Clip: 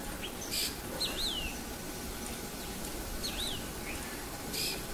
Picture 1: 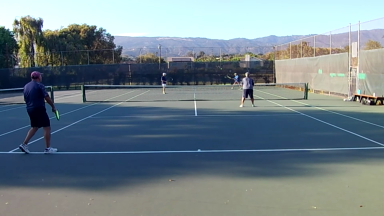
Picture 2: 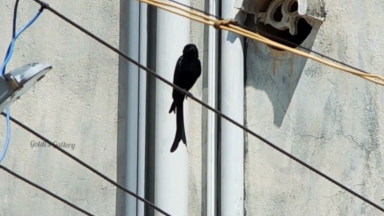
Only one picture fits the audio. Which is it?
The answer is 2